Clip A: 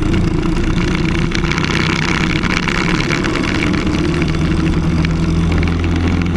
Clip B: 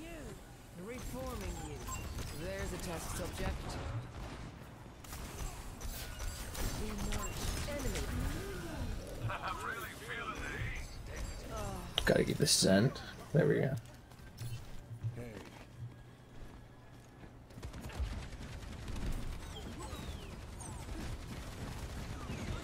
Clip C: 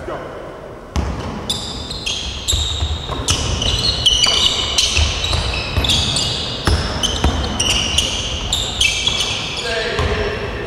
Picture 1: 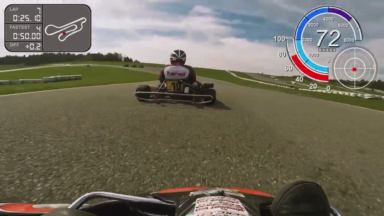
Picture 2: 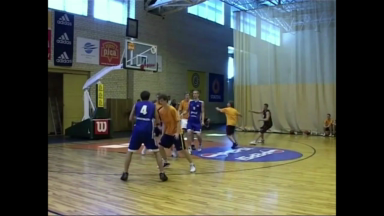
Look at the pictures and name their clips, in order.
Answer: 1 A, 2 C